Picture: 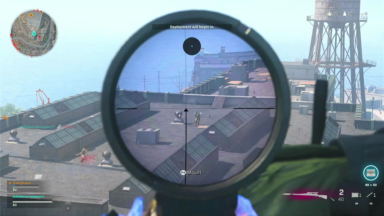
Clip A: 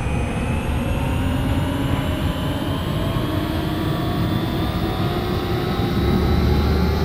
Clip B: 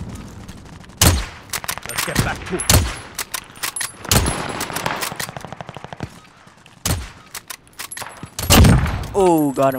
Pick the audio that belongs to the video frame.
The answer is B